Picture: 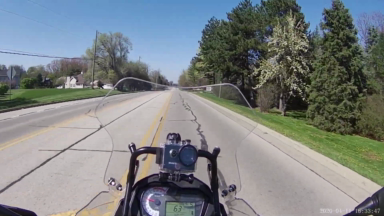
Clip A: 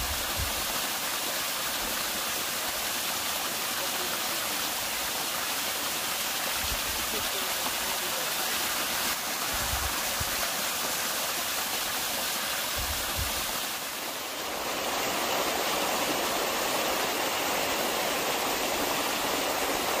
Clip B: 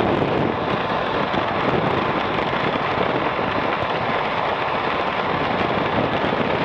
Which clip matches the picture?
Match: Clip B